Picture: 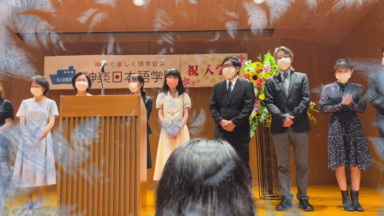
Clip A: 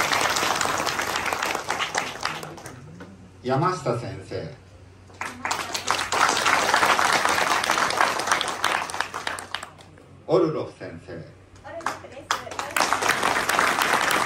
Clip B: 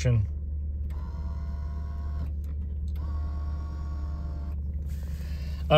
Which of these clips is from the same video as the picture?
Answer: A